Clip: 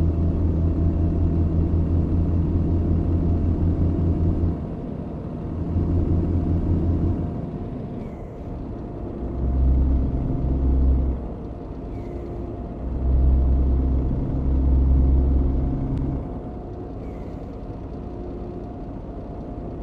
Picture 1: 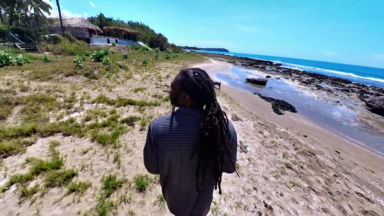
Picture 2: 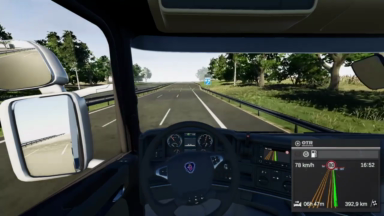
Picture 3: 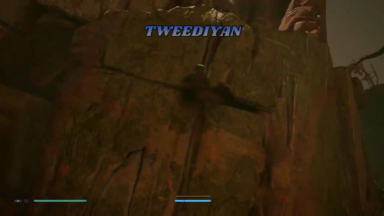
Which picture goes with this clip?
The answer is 2